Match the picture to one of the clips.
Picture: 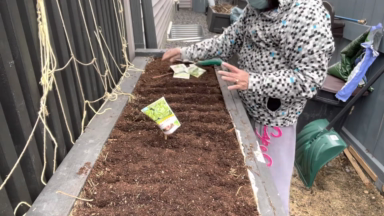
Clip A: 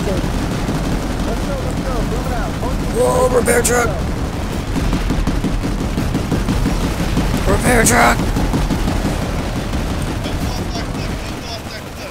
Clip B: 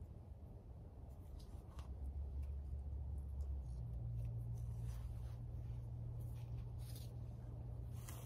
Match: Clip B